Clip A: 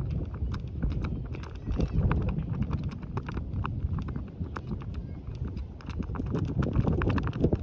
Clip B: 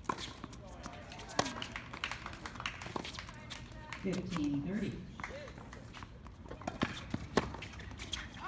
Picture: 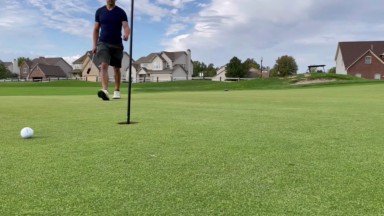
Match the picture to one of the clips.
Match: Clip A